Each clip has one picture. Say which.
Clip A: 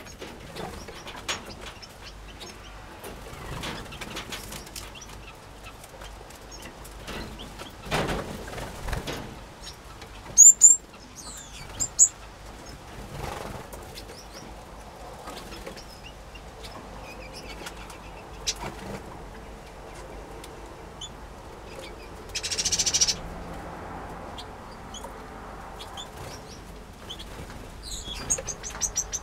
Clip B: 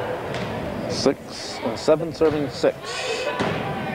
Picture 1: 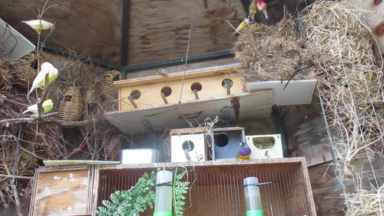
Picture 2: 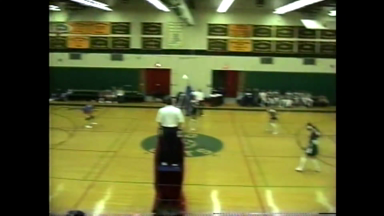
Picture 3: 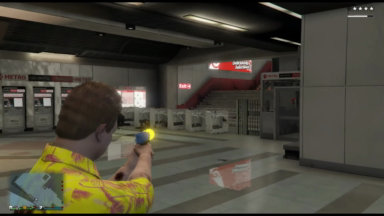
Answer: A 1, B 2